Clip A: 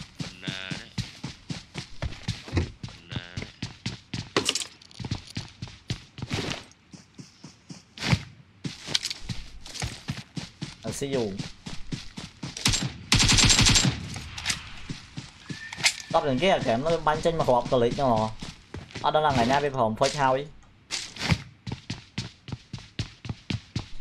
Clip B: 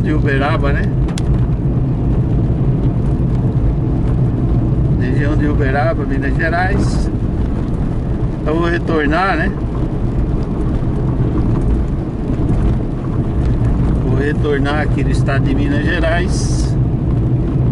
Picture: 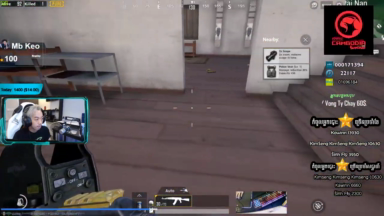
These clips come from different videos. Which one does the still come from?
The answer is A